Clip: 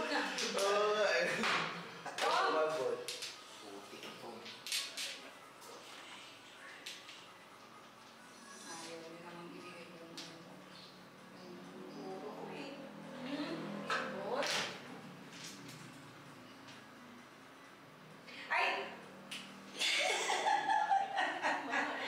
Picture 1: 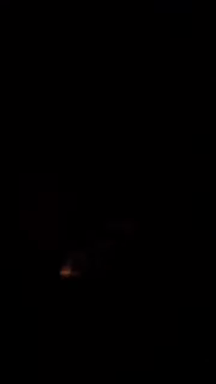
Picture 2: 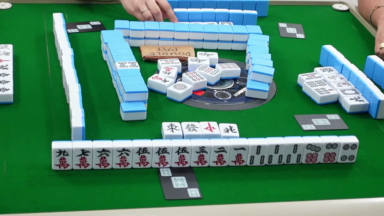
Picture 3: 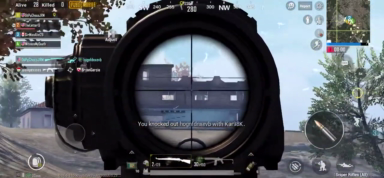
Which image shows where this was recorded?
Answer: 2